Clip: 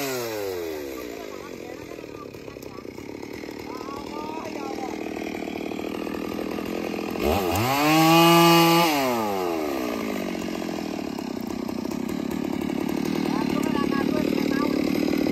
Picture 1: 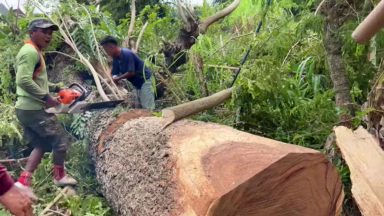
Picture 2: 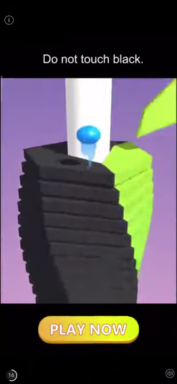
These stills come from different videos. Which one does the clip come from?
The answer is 1